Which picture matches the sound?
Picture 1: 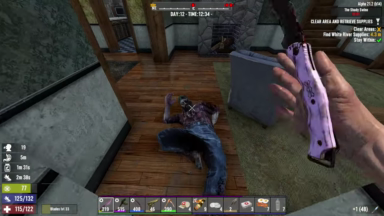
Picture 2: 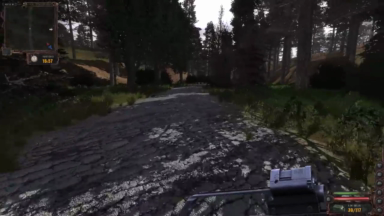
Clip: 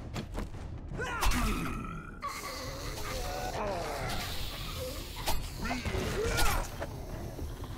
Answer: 1